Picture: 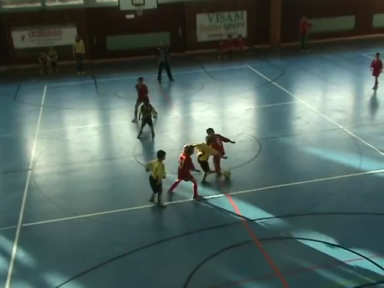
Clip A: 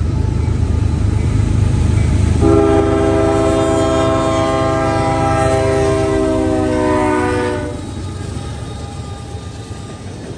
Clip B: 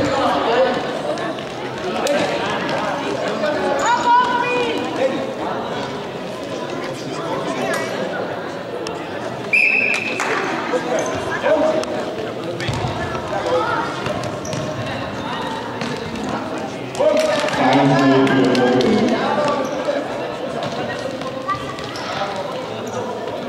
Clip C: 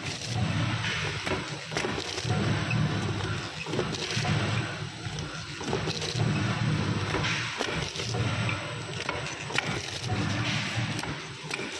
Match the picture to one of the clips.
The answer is B